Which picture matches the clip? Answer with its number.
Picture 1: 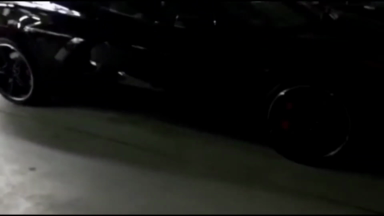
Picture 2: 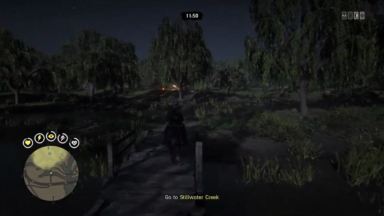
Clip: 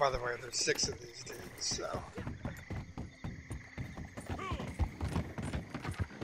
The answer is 2